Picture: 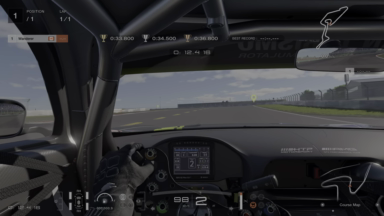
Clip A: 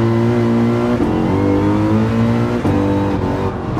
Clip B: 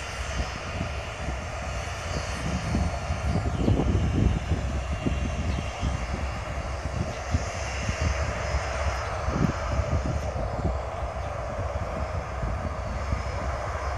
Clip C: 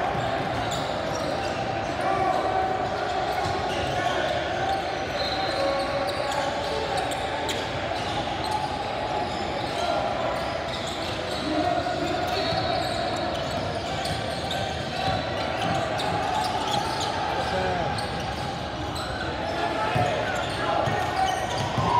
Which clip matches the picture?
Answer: A